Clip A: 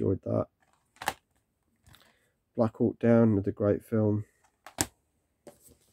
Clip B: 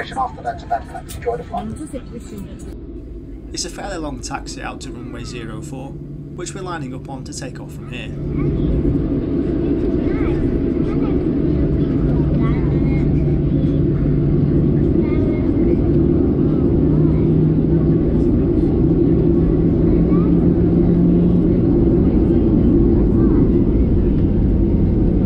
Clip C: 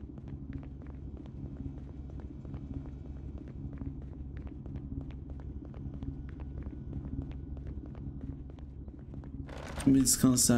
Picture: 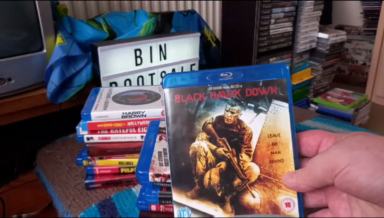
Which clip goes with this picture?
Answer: A